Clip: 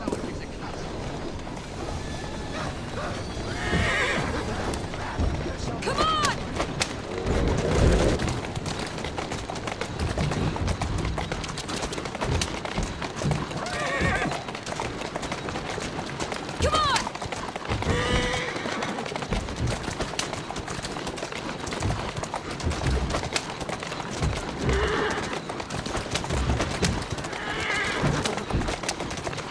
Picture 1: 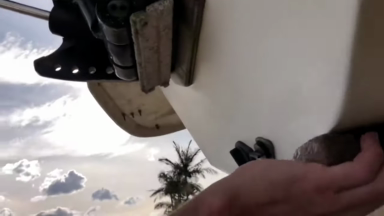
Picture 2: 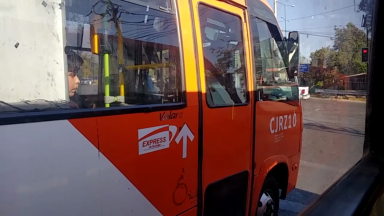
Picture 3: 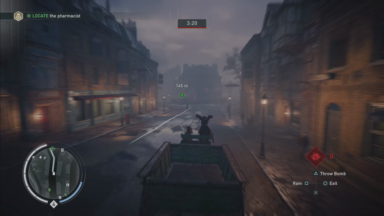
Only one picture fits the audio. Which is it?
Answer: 3